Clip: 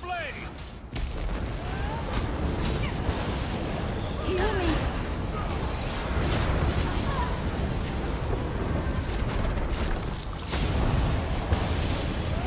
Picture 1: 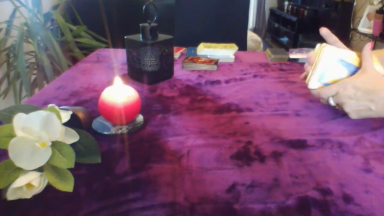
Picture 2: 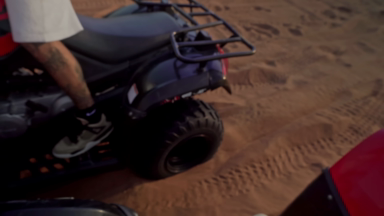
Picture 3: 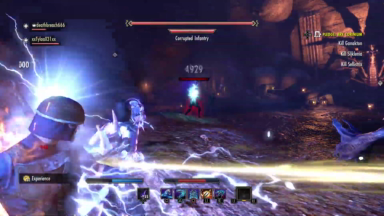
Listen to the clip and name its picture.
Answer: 3